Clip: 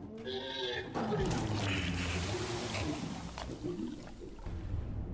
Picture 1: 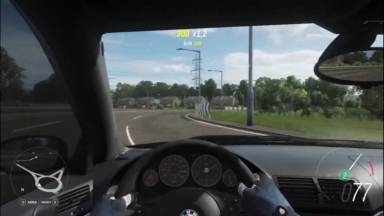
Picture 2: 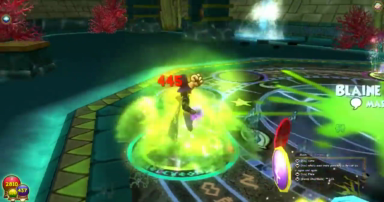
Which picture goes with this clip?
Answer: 2